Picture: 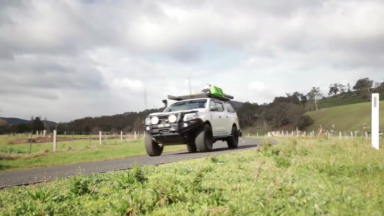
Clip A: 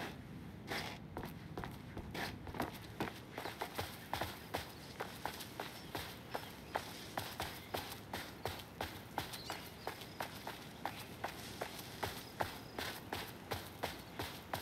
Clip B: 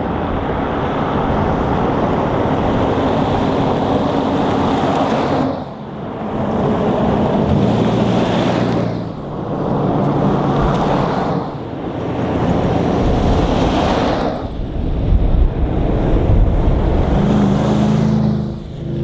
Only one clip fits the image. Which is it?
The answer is B